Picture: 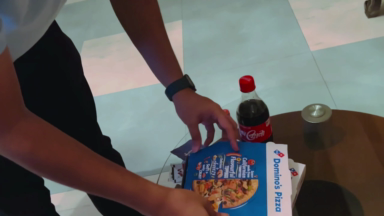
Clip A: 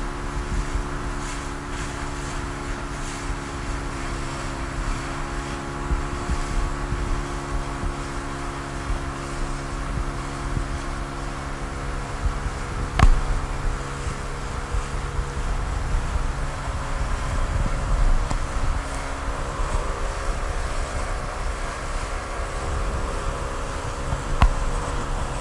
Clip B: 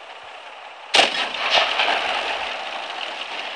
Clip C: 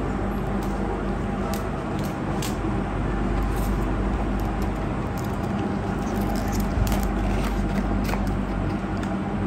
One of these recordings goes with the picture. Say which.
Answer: C